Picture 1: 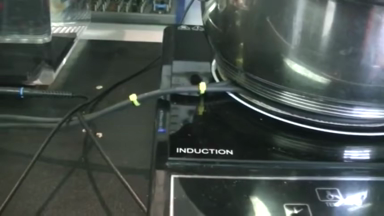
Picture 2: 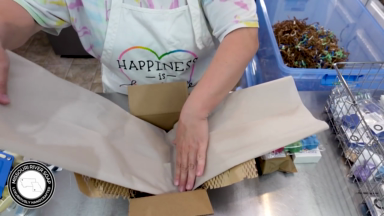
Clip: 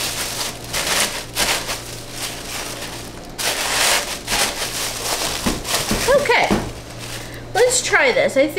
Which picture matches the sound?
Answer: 2